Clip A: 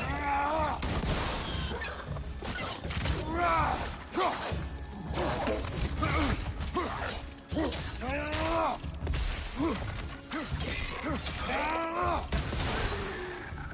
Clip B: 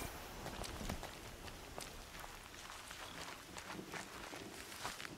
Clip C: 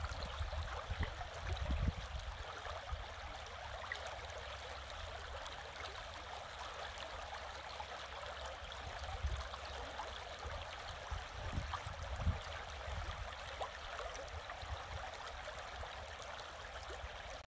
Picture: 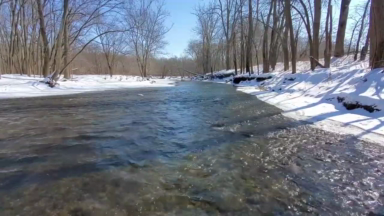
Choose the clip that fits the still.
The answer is C